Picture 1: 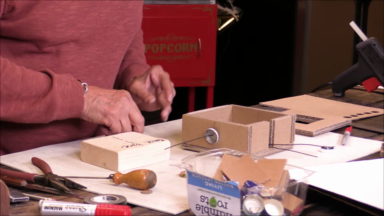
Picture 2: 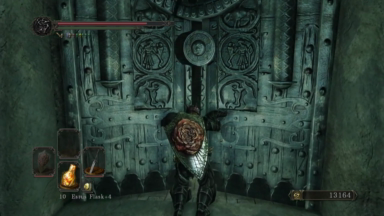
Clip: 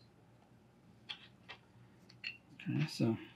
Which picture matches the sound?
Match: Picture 1